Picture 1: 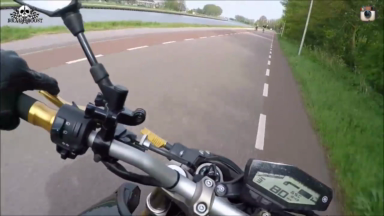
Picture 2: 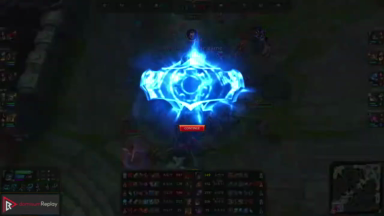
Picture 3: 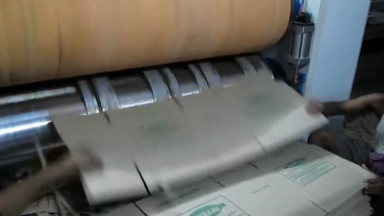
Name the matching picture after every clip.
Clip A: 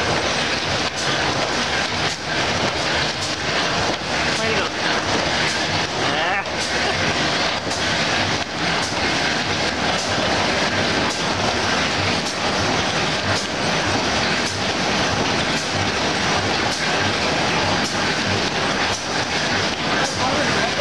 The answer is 3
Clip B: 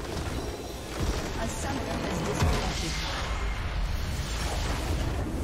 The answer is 2